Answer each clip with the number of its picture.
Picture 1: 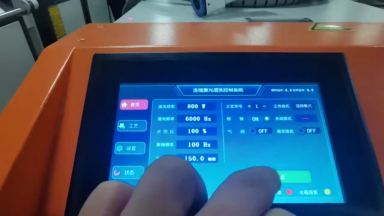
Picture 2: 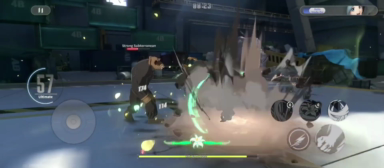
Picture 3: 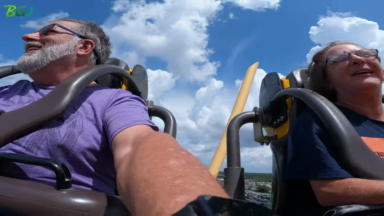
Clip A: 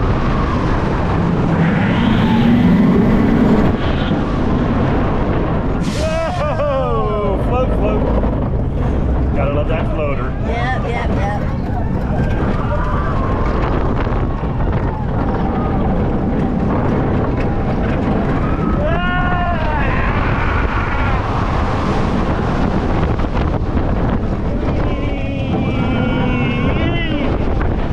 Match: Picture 3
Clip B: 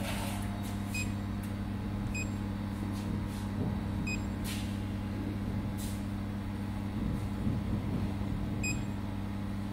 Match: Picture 1